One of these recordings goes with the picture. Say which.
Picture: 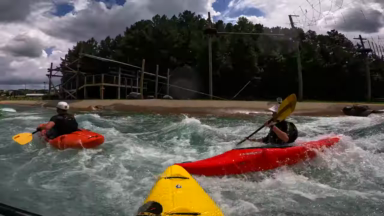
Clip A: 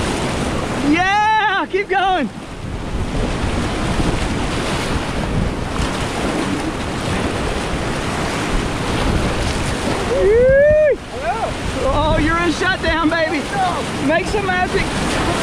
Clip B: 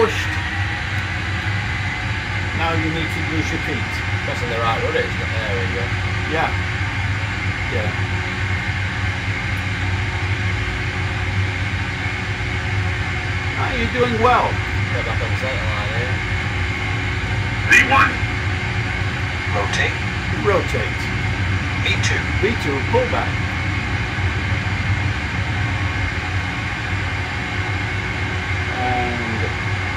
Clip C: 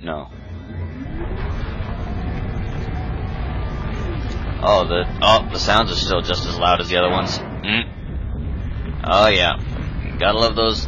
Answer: A